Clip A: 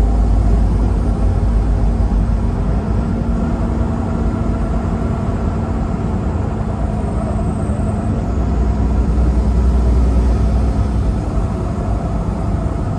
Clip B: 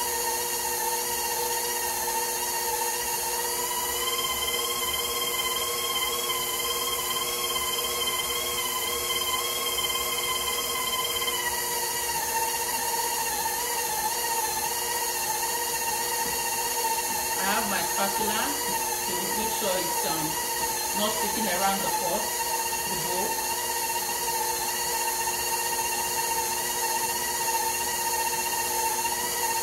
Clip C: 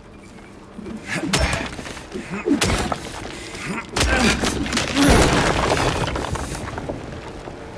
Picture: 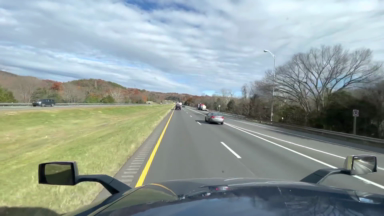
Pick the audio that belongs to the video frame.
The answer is A